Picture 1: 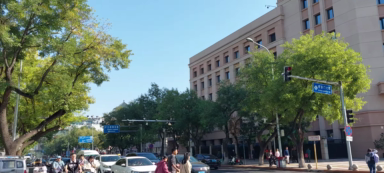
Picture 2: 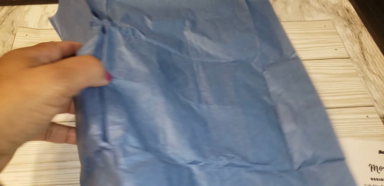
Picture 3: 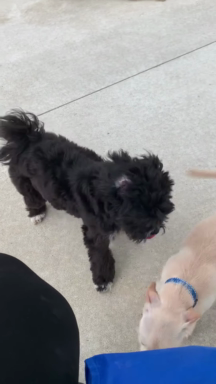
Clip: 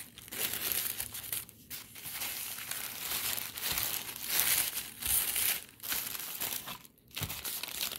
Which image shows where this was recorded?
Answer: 2